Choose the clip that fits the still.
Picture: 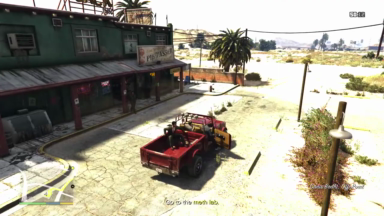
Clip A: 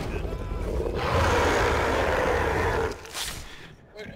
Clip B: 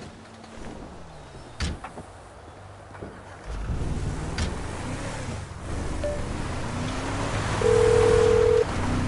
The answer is B